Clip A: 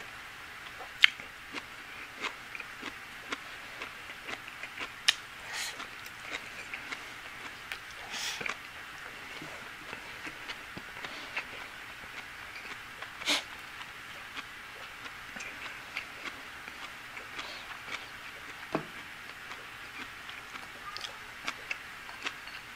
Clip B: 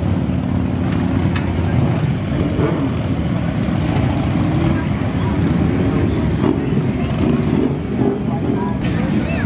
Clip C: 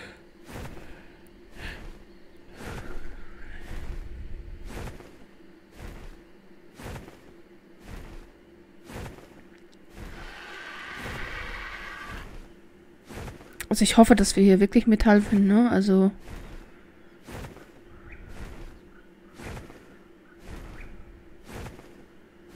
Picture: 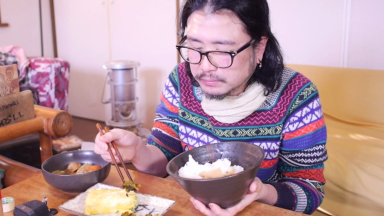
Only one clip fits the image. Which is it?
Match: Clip A